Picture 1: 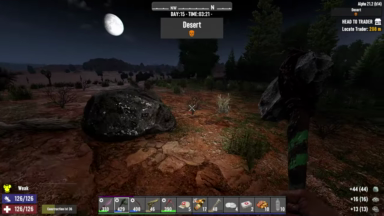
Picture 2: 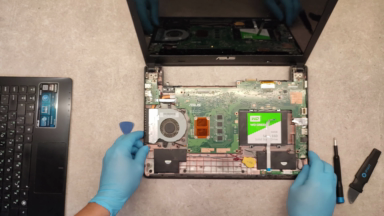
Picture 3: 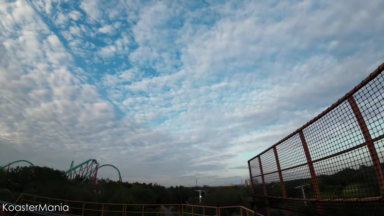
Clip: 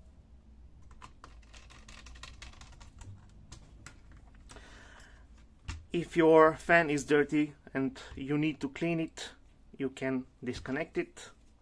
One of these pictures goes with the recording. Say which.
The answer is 2